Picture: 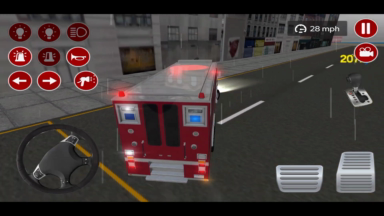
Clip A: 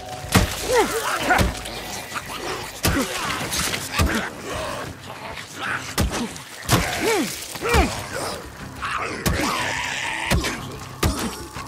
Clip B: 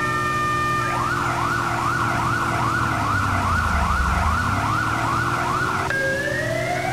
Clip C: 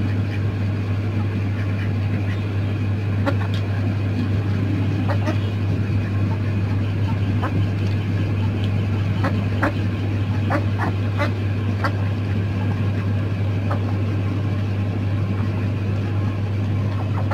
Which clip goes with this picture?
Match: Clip B